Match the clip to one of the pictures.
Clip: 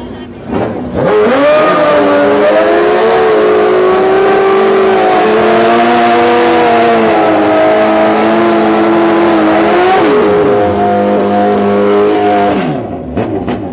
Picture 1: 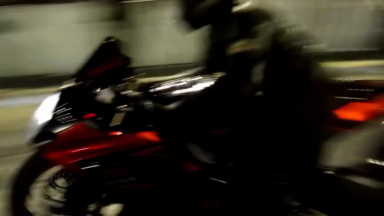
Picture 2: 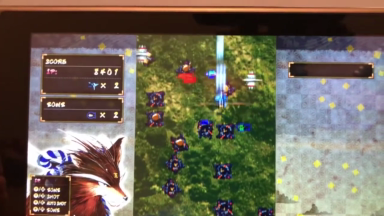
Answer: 1